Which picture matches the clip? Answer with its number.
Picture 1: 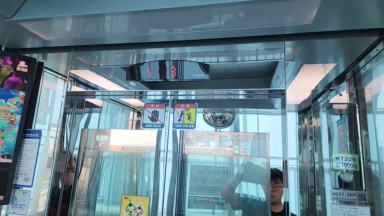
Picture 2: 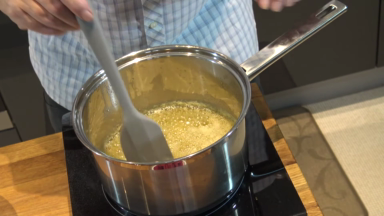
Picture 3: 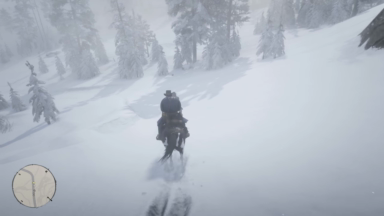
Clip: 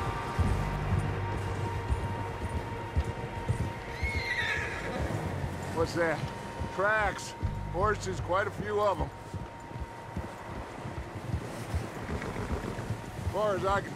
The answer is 3